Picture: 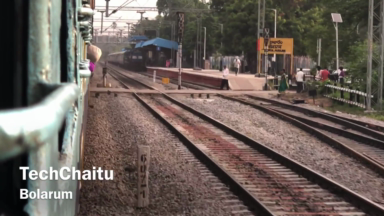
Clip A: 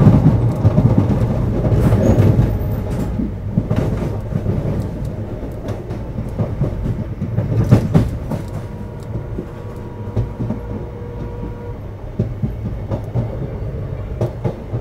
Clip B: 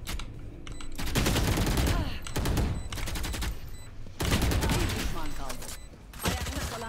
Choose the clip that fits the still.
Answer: A